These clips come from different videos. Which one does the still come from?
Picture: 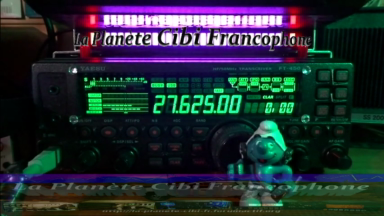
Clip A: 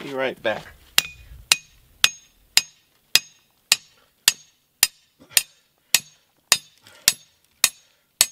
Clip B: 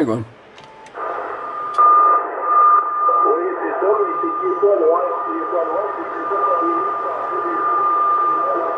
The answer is B